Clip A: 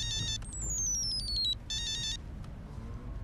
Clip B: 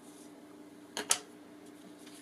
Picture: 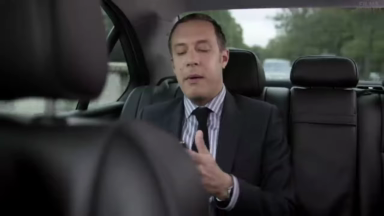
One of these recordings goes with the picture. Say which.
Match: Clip A